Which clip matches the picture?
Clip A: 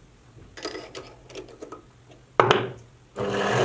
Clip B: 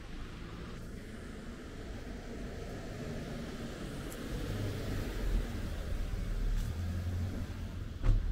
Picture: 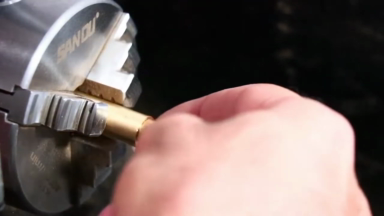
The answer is A